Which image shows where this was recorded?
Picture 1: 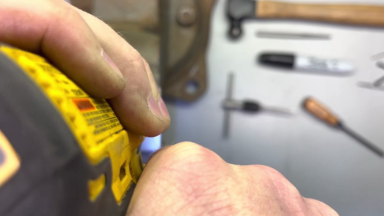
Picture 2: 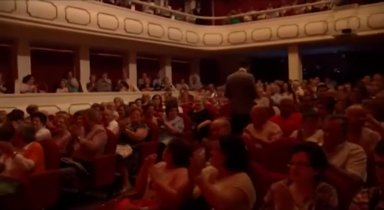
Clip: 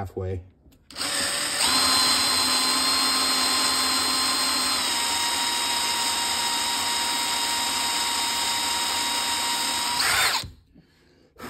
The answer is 1